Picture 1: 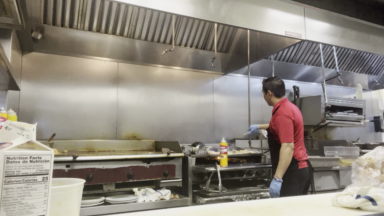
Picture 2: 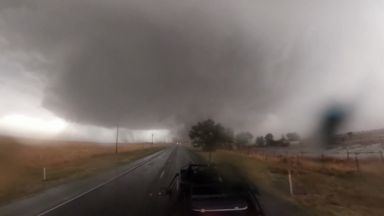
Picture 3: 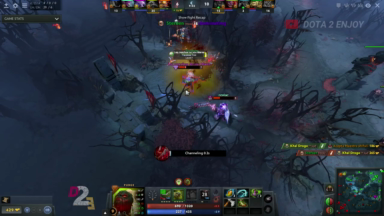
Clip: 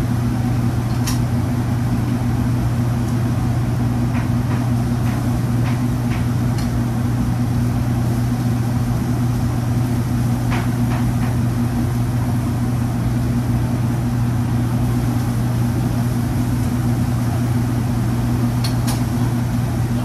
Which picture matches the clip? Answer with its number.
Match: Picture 1